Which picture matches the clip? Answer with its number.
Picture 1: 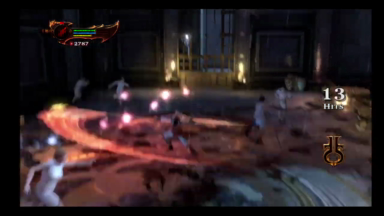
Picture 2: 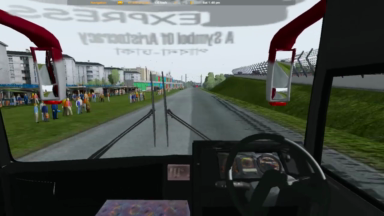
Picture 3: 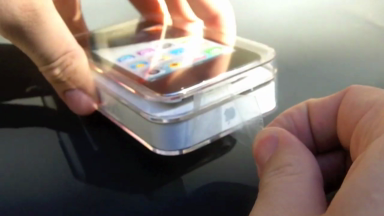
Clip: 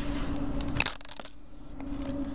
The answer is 3